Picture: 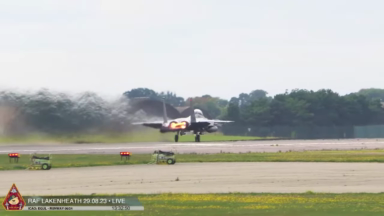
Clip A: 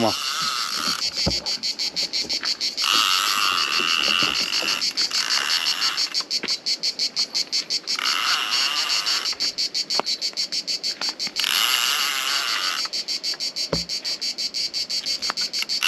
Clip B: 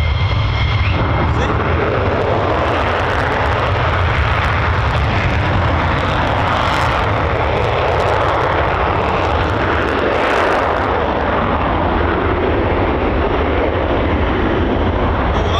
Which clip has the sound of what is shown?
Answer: B